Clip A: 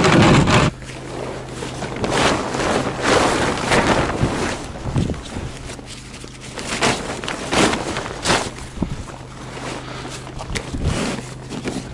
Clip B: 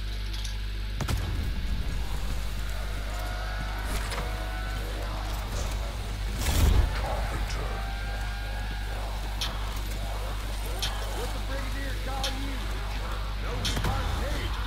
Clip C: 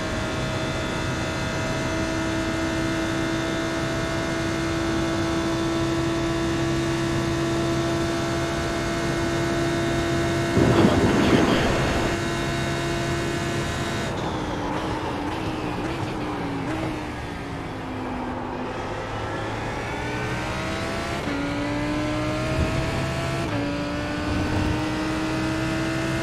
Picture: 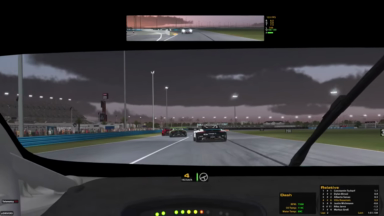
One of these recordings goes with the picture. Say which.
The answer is C